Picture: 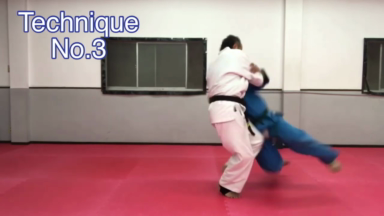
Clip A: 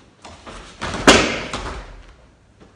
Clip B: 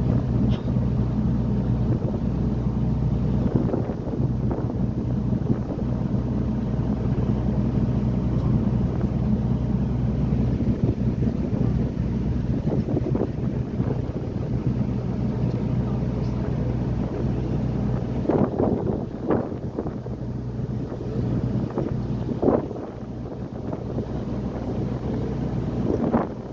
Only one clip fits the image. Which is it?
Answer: A